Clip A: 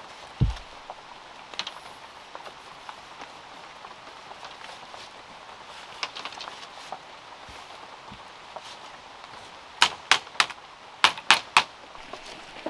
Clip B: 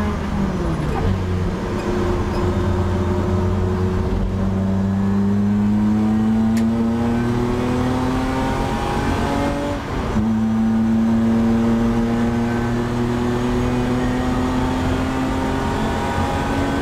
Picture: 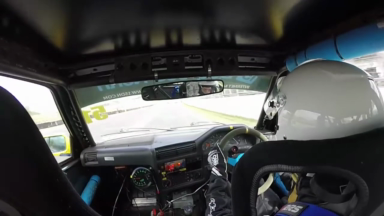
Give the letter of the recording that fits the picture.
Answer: B